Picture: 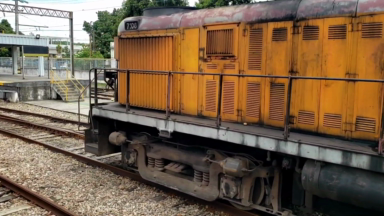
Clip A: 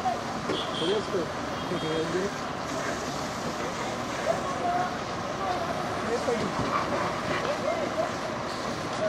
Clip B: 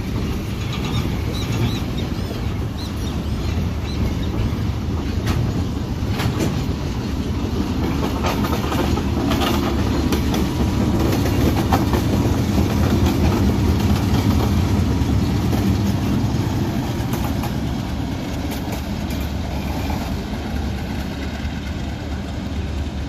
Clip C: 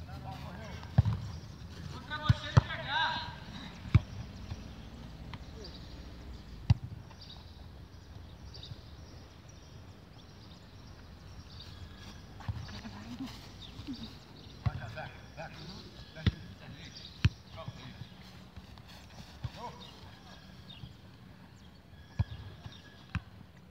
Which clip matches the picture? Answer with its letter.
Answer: B